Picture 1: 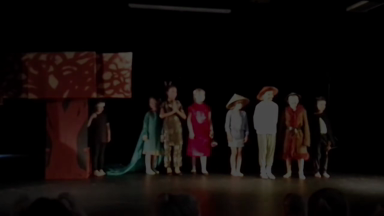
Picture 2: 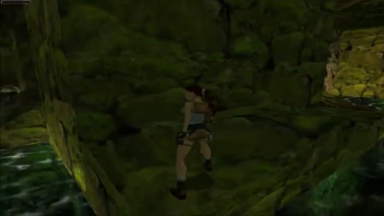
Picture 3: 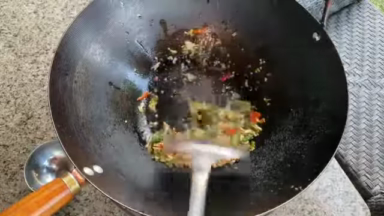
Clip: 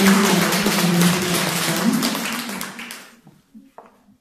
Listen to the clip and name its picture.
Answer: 1